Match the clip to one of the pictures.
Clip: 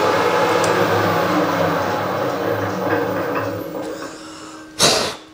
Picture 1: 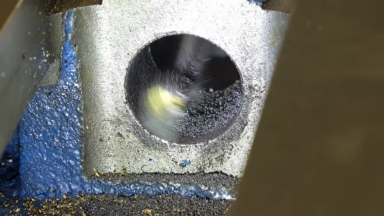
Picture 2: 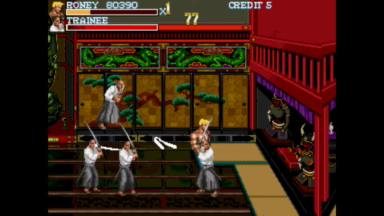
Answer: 1